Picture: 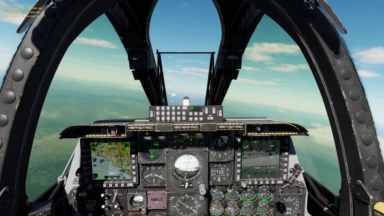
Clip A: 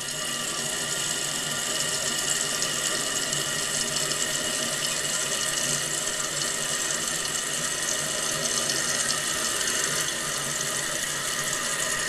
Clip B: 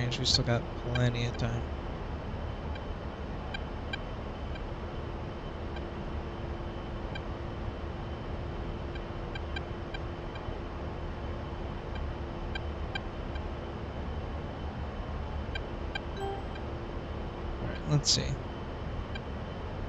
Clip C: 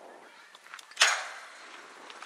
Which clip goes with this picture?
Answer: B